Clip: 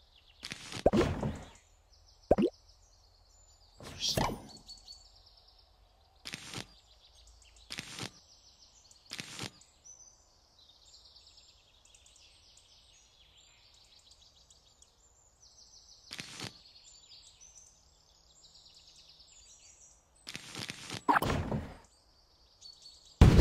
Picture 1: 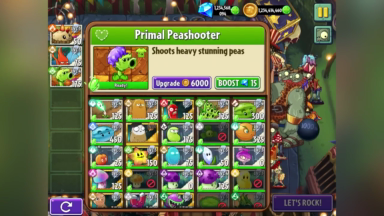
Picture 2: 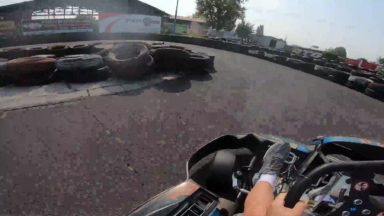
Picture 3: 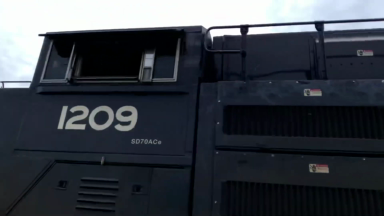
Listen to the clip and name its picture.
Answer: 1